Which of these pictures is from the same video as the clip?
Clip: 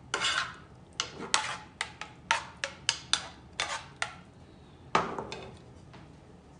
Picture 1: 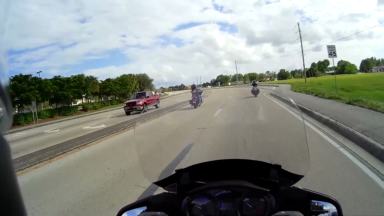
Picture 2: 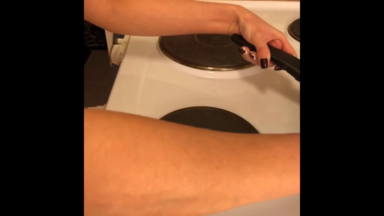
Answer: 2